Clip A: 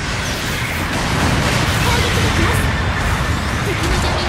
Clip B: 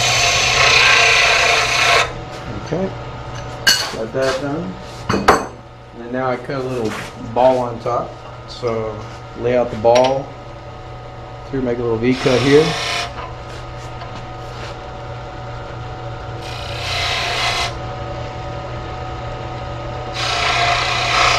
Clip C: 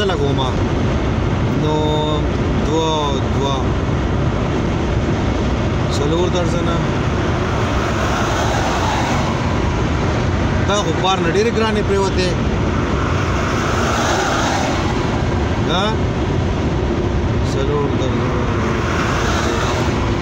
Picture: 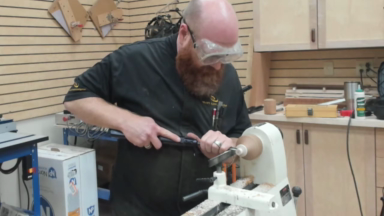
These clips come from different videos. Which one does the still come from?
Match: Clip B